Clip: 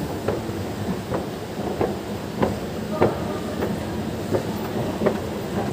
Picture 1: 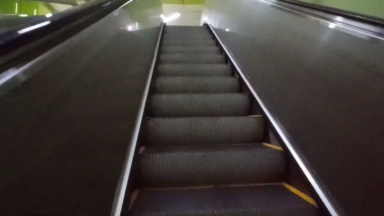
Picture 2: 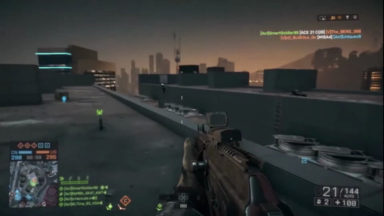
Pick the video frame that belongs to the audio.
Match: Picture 1